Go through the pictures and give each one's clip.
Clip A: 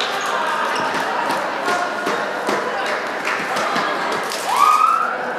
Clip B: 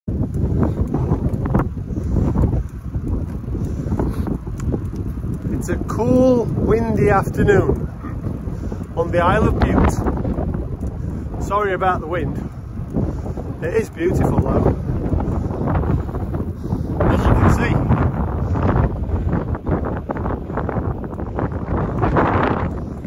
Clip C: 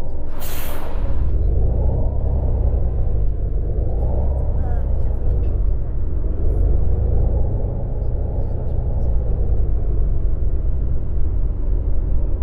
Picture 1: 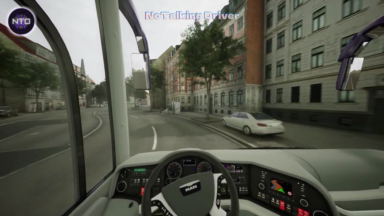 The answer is C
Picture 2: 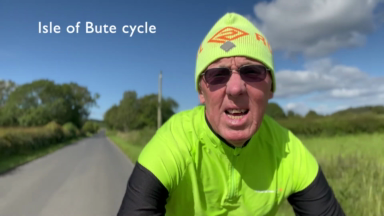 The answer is B